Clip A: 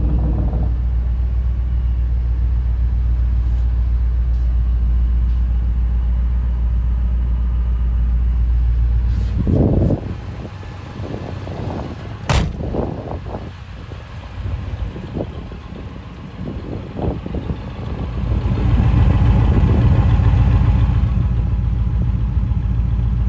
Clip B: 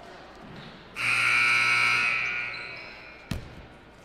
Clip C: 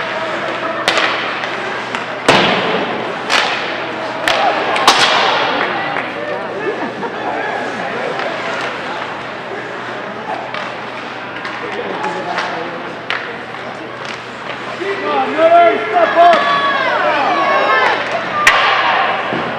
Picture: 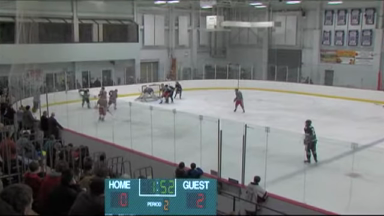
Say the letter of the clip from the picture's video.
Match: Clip C